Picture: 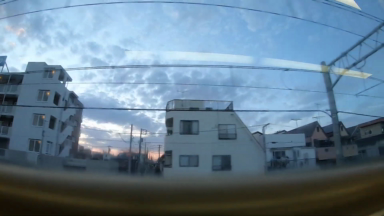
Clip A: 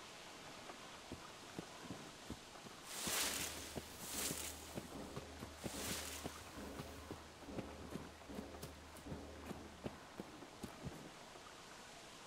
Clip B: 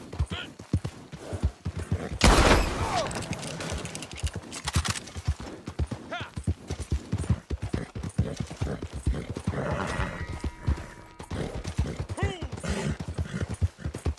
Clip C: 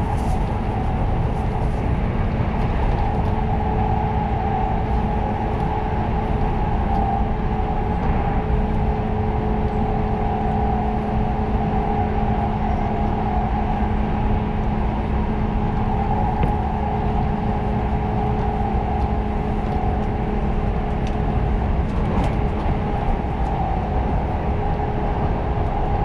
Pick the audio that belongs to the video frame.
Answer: C